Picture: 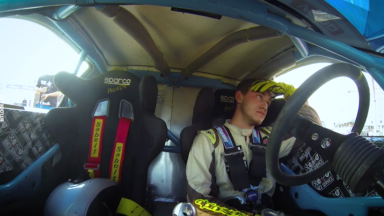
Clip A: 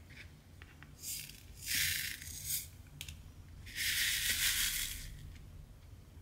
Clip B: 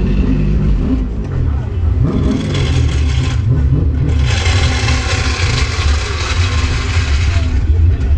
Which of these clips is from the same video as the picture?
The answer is B